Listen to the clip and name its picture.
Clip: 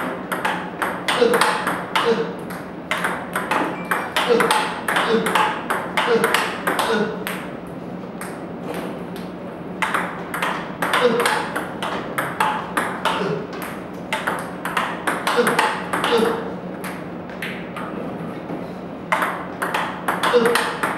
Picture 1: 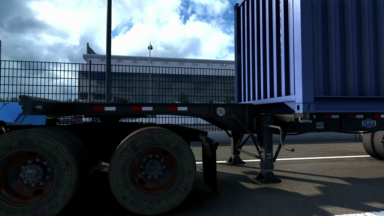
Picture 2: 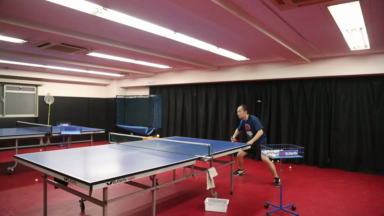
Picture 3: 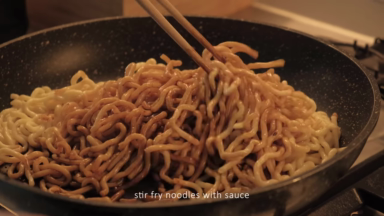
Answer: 2